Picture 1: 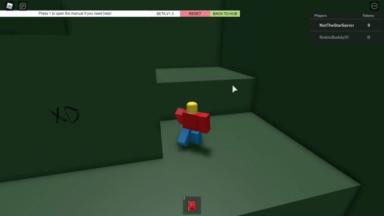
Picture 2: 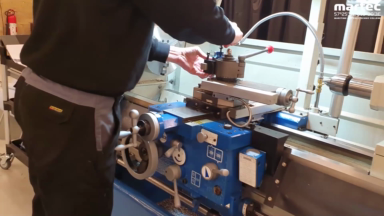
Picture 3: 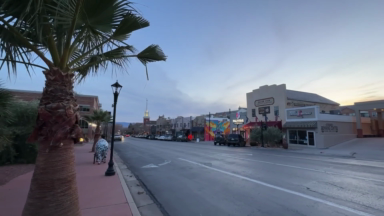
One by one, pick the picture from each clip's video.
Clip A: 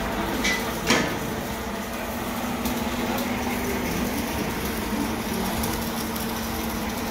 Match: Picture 2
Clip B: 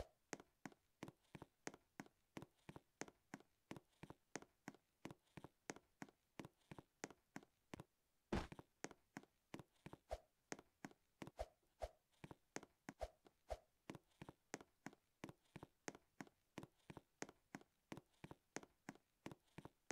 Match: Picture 1